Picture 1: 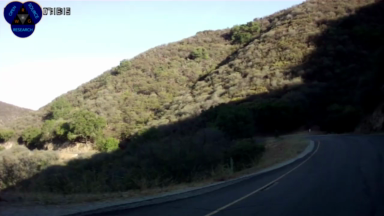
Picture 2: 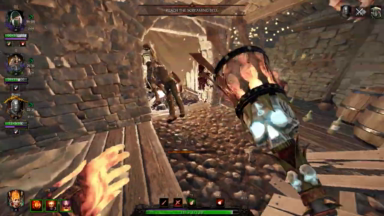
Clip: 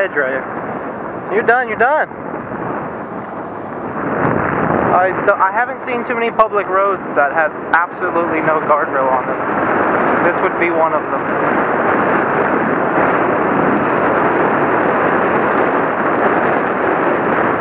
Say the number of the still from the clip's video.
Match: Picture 1